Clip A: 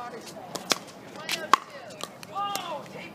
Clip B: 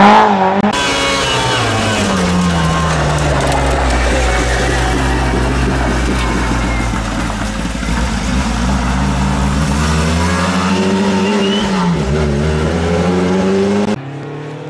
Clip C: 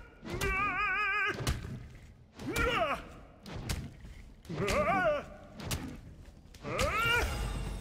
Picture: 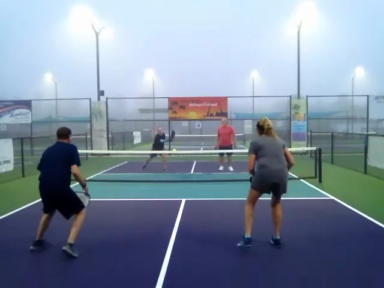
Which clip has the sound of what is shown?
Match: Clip A